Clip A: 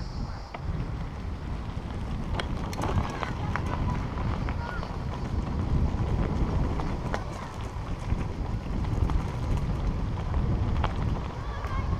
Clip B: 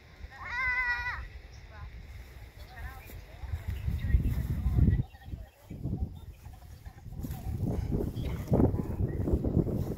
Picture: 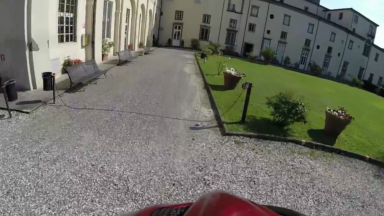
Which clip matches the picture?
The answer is A